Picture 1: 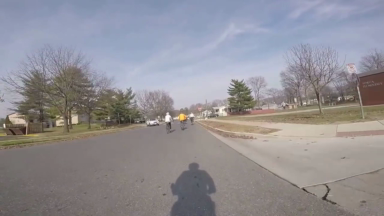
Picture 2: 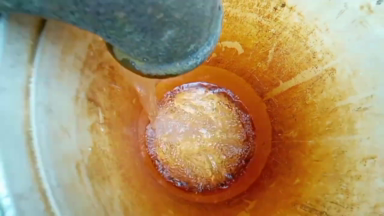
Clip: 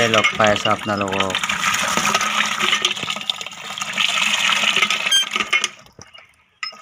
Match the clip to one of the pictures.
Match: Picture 2